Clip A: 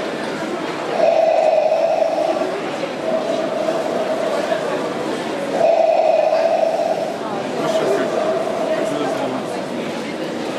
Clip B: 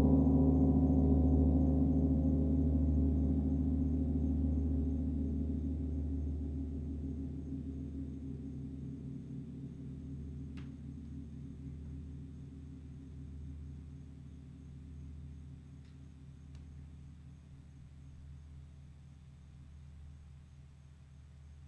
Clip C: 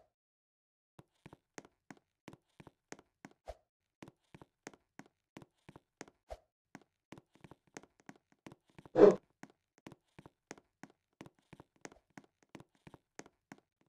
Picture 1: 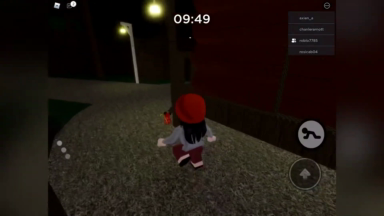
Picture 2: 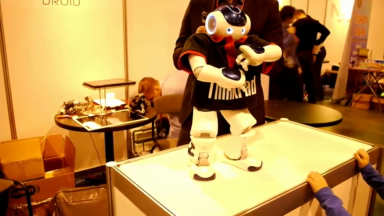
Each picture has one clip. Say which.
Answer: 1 C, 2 A